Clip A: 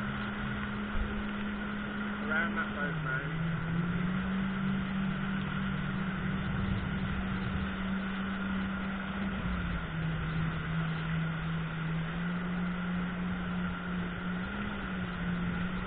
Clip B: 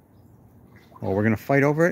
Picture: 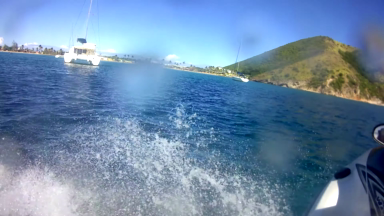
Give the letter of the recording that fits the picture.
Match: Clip A